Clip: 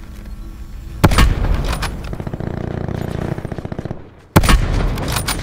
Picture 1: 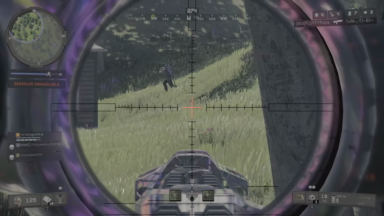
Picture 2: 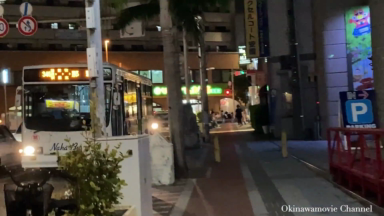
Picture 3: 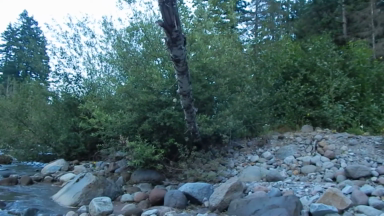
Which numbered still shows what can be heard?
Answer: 1